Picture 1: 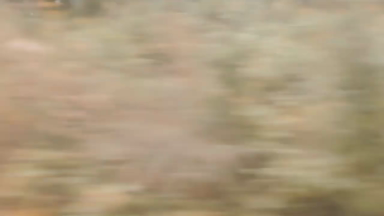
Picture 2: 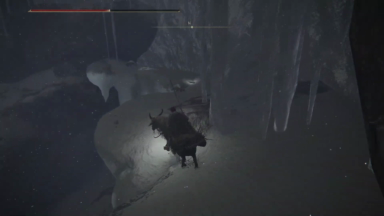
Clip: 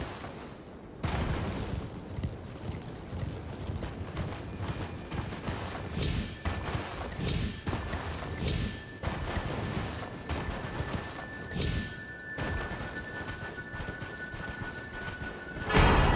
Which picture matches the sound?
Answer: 2